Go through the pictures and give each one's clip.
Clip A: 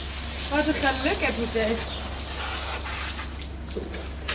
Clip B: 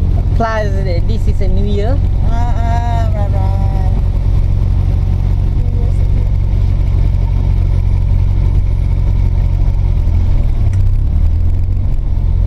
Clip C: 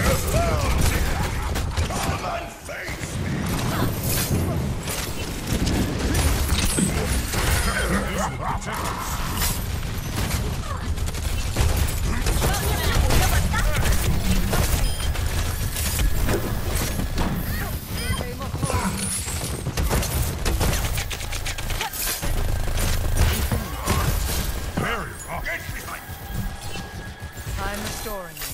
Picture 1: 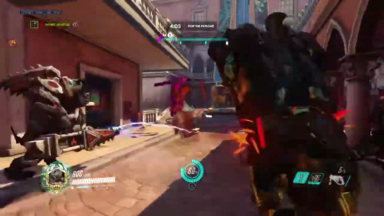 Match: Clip C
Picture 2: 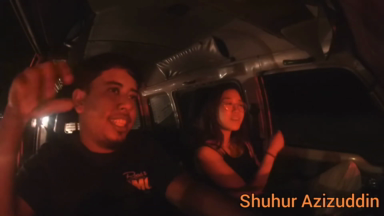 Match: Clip B